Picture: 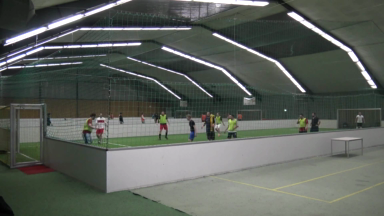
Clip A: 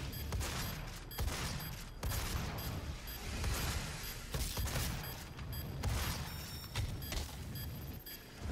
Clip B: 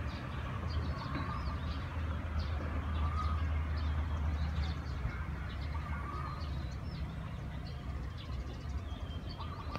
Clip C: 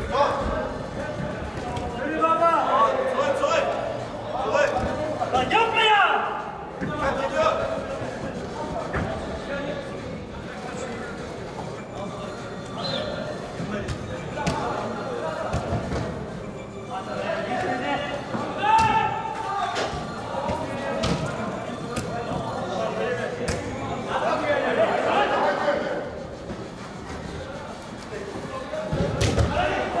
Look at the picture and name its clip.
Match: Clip C